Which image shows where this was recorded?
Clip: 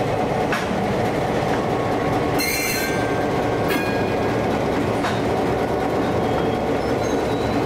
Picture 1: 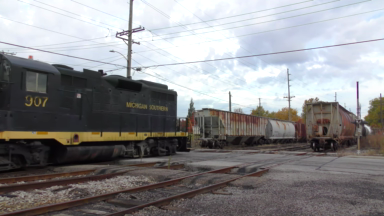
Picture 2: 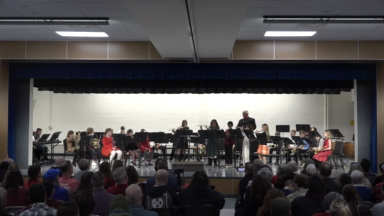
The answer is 1